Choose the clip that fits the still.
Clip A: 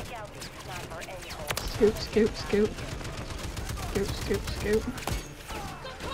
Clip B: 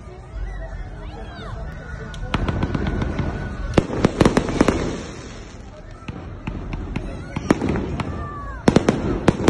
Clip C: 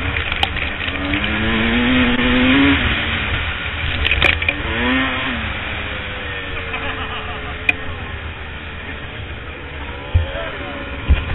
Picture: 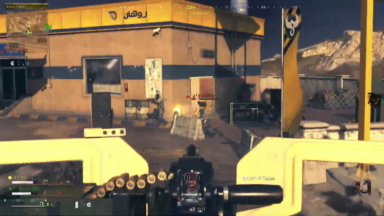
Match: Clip A